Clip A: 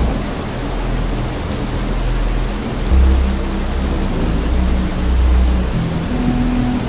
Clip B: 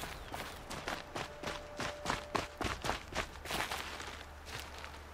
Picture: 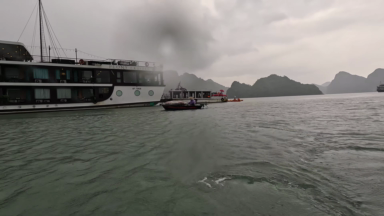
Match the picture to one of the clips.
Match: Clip A